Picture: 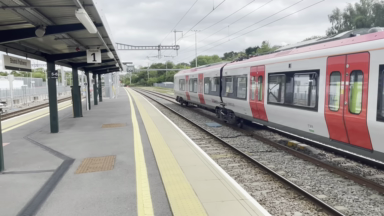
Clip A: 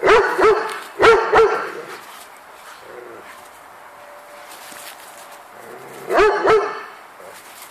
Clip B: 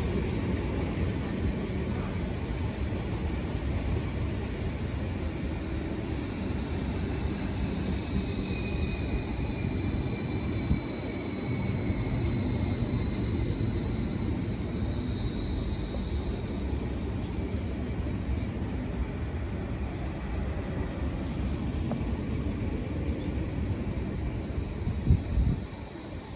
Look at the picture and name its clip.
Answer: B